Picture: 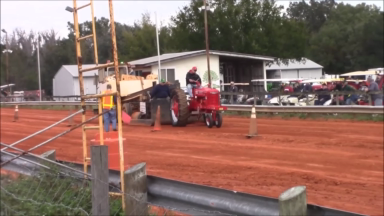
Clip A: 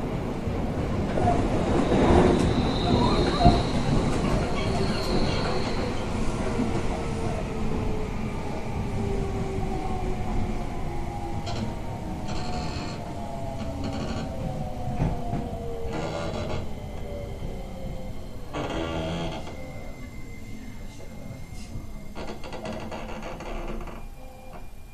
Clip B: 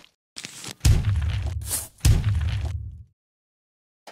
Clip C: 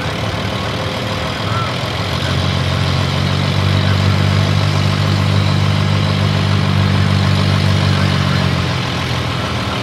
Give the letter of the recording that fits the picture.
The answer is C